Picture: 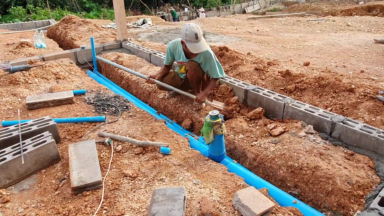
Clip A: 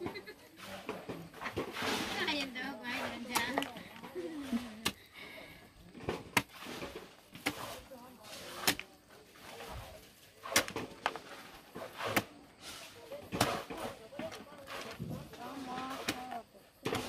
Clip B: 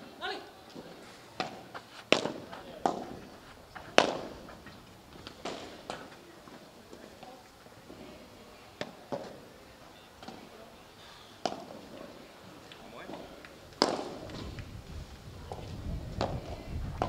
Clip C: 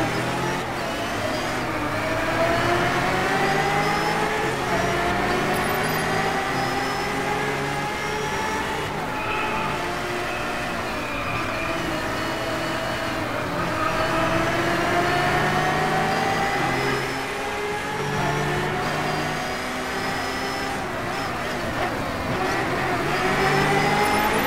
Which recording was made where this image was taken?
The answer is A